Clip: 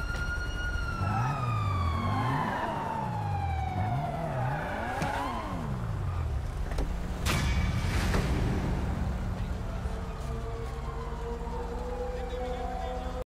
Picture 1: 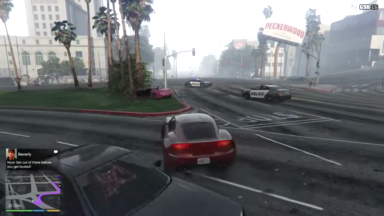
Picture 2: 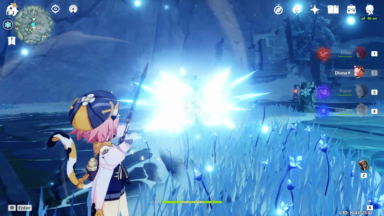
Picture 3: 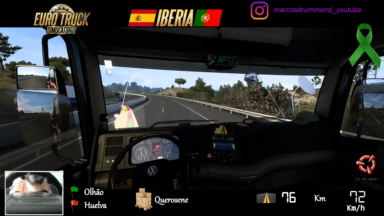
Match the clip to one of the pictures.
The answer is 1